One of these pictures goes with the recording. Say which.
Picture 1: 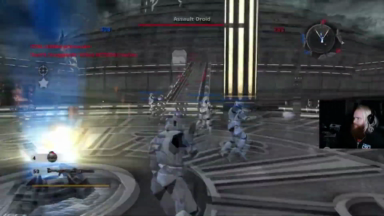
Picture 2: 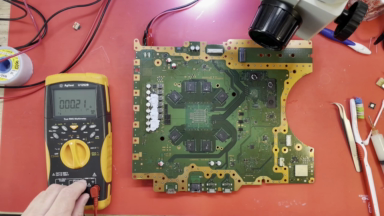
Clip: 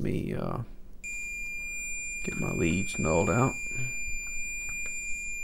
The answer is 2